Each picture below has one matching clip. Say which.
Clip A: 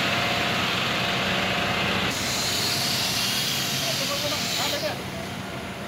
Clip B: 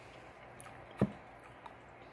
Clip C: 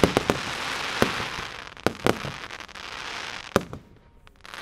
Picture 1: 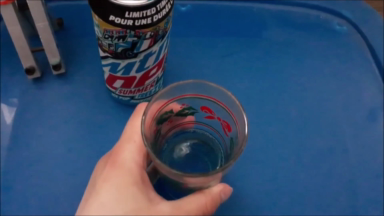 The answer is B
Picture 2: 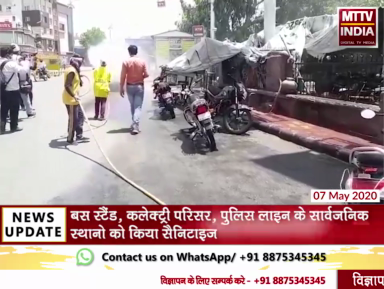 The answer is A